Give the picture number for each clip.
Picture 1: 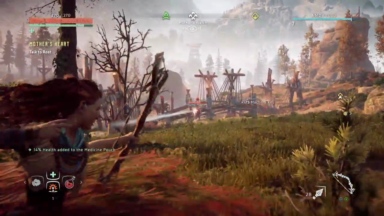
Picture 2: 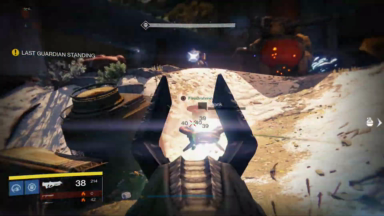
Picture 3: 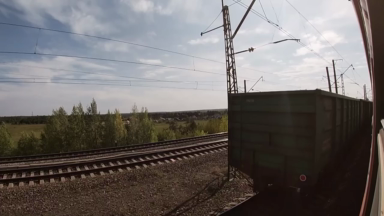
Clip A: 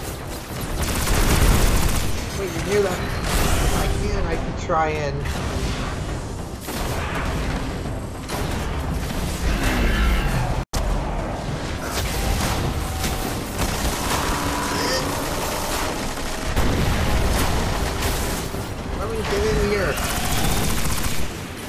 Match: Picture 2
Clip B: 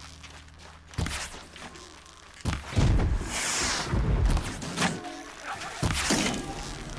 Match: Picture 1